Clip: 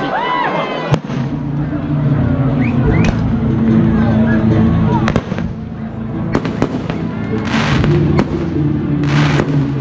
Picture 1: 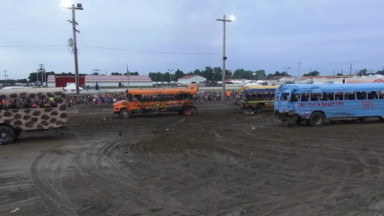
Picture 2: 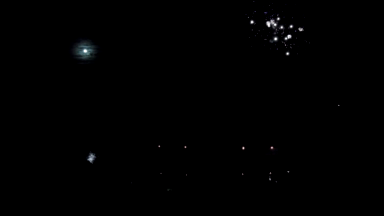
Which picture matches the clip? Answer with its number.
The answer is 2